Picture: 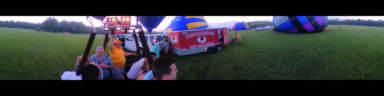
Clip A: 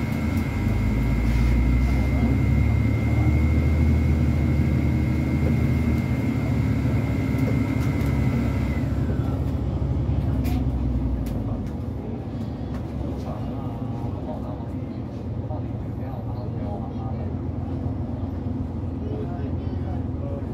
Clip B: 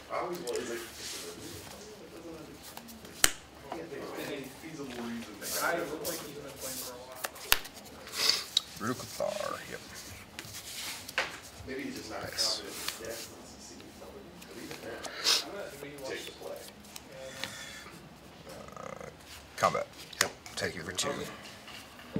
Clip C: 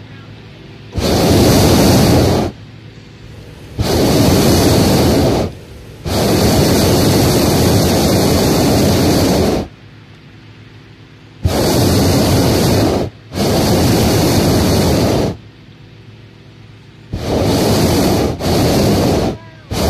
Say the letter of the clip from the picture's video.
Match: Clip C